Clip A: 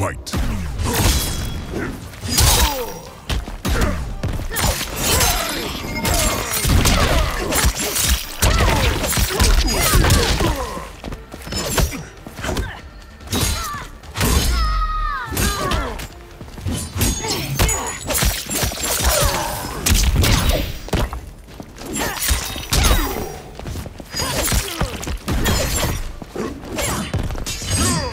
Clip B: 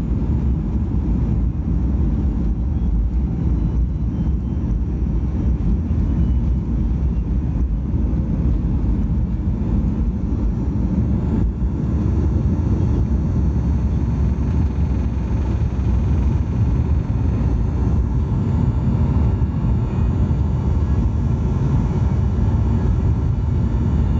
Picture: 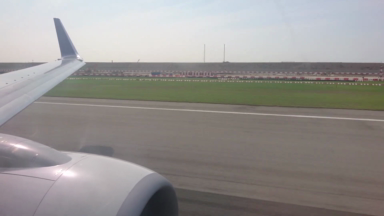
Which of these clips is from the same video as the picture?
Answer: B